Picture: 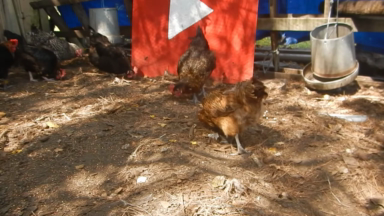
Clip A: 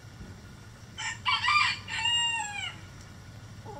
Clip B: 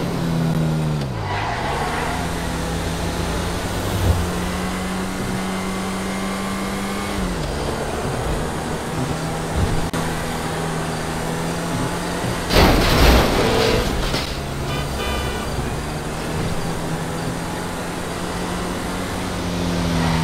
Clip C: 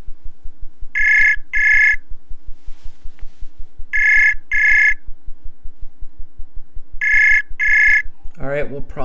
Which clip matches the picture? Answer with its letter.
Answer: A